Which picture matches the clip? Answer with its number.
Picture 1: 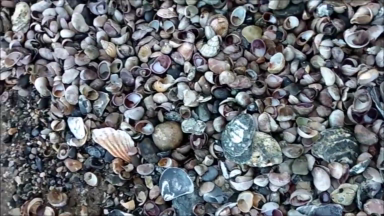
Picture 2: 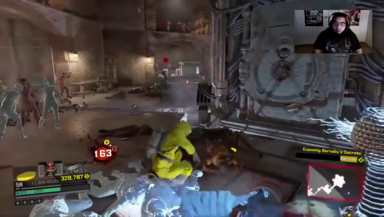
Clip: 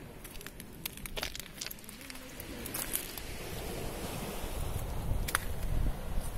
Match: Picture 1